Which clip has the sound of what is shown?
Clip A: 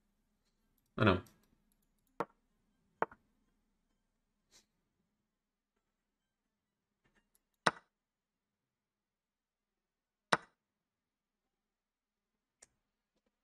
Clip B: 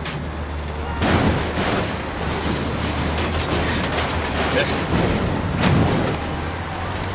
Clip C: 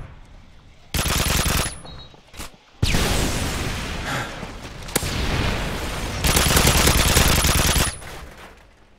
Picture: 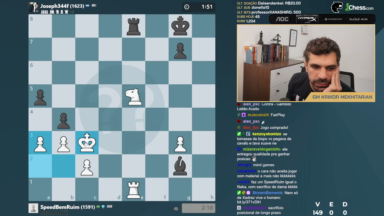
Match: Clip A